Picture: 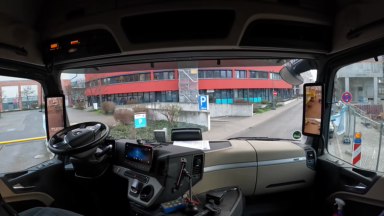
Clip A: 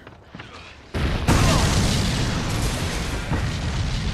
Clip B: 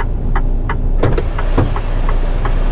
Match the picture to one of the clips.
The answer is B